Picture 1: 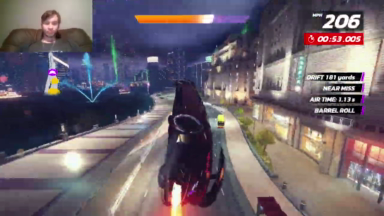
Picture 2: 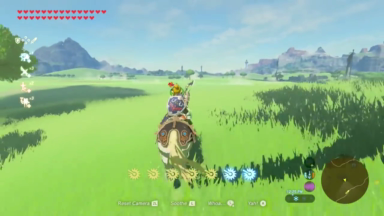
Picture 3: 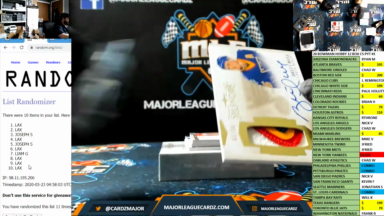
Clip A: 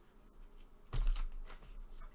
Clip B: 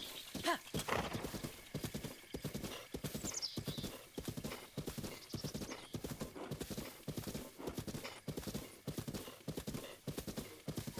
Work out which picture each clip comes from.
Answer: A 3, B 2